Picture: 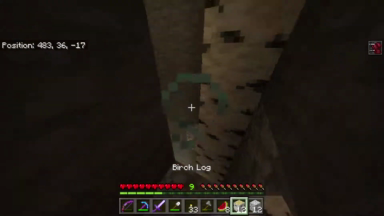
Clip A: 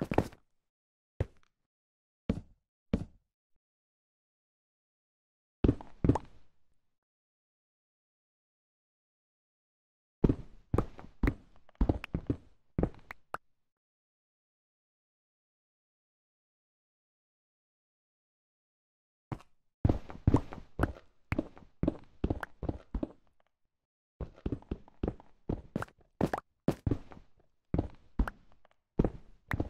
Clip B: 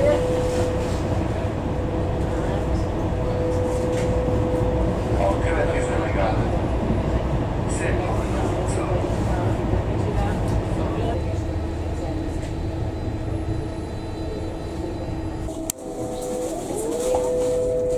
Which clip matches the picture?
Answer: A